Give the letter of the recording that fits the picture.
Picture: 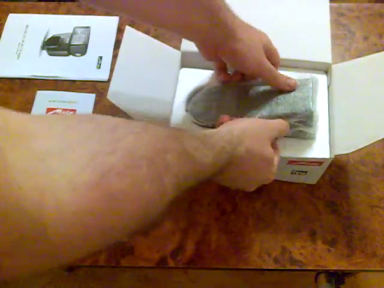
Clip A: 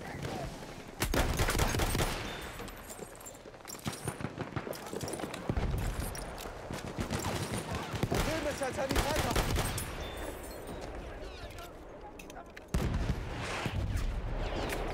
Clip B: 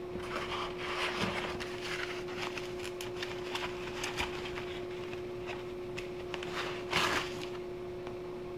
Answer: B